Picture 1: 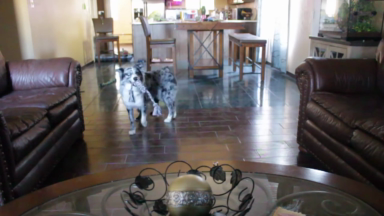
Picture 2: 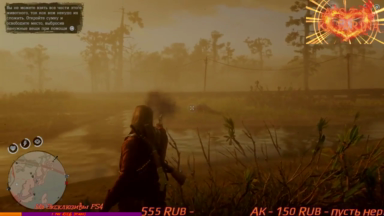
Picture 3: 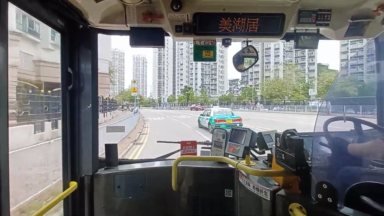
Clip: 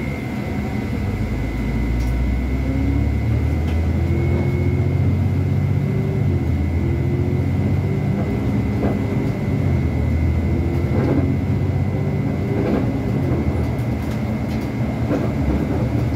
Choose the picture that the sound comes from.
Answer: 3